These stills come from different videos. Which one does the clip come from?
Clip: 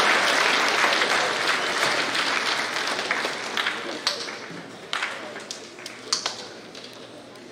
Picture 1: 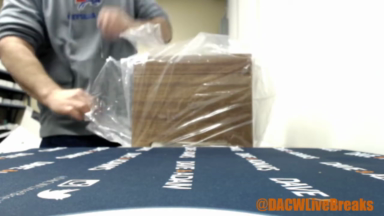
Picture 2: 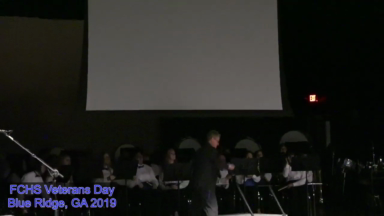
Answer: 2